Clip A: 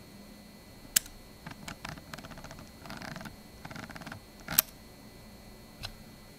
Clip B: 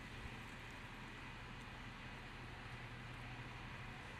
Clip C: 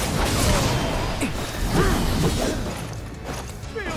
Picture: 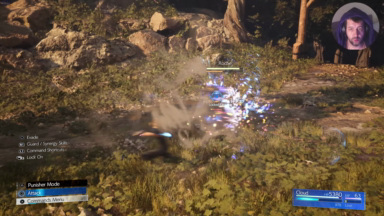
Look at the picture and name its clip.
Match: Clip C